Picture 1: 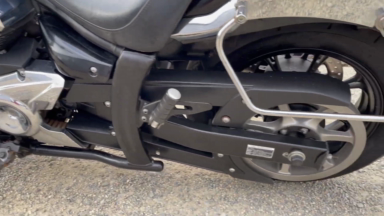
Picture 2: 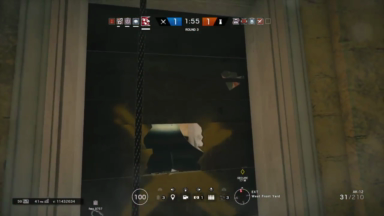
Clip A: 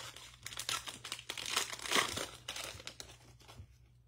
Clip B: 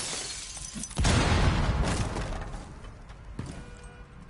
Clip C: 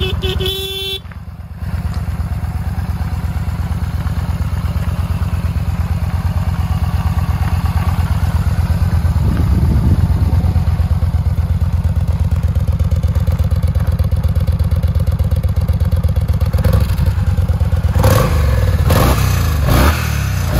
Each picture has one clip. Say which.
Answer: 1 C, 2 B